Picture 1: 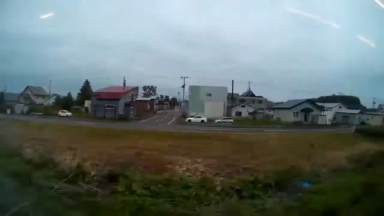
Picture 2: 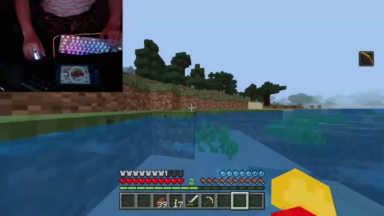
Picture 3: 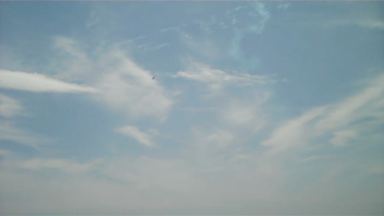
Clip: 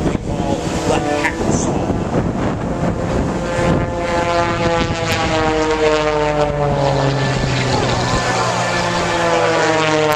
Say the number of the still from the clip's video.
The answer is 3